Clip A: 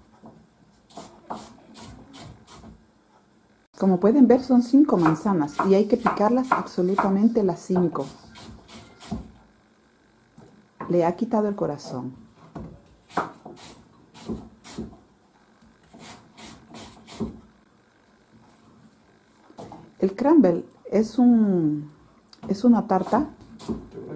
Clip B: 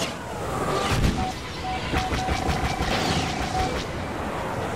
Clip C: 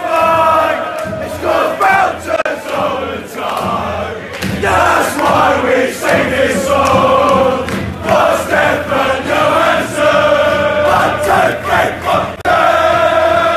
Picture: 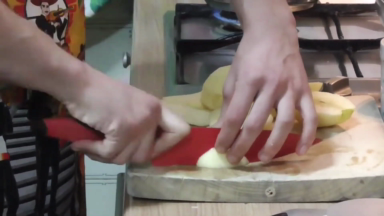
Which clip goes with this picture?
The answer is A